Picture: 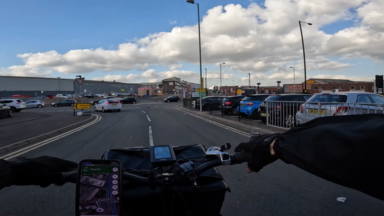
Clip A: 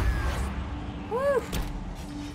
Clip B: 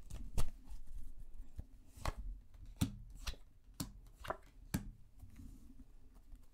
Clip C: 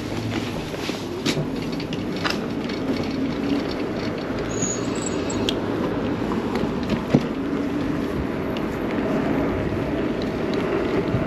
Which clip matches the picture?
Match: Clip C